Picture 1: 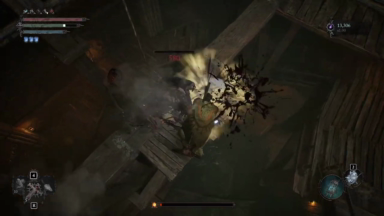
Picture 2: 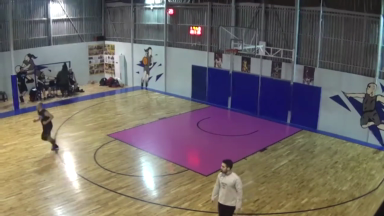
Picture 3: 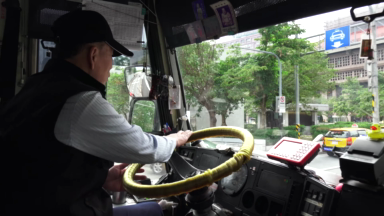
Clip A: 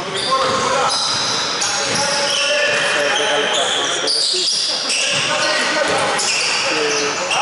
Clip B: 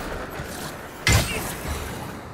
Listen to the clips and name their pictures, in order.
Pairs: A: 2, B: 1